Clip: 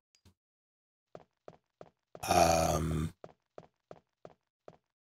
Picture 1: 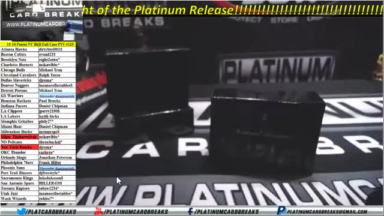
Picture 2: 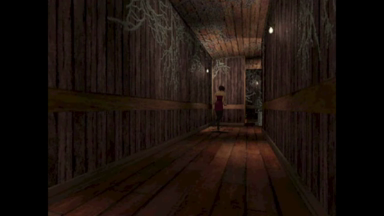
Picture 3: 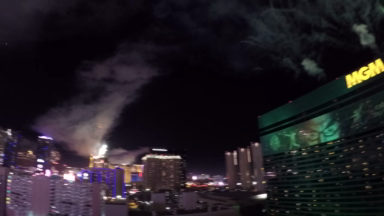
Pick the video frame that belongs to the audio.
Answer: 2